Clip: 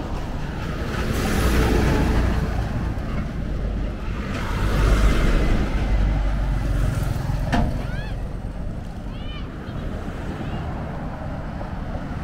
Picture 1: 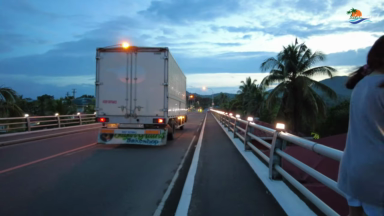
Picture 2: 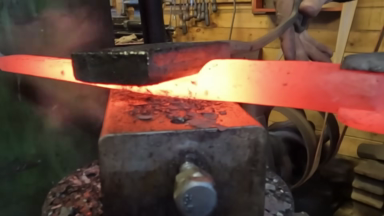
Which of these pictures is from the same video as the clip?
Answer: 1